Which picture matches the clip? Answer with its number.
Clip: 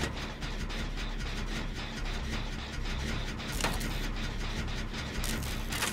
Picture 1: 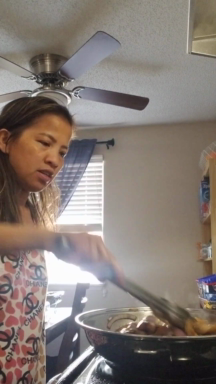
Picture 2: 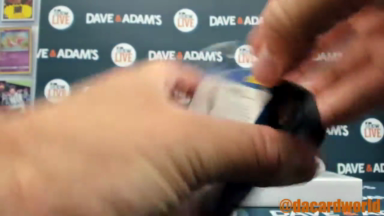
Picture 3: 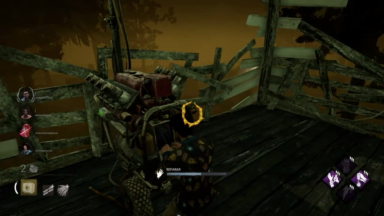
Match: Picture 3